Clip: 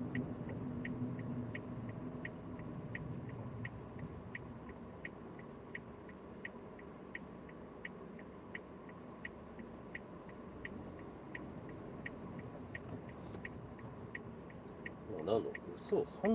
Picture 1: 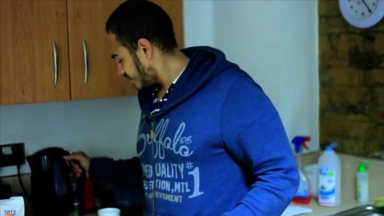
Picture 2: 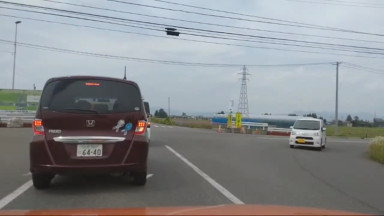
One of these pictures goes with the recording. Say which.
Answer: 2